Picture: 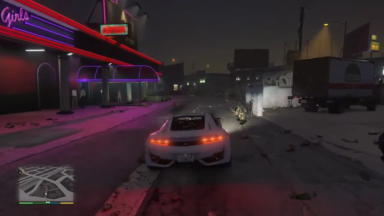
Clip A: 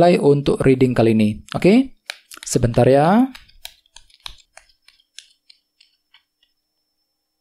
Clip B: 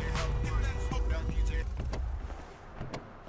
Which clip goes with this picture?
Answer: B